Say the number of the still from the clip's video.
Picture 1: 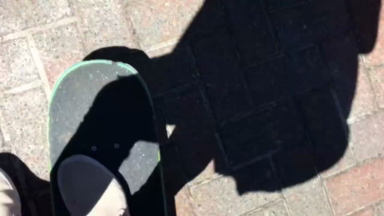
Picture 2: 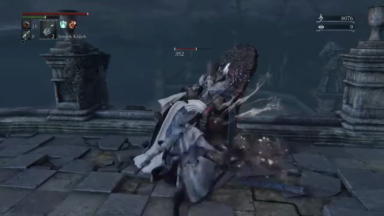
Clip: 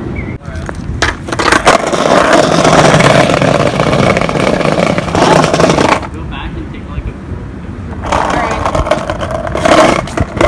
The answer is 1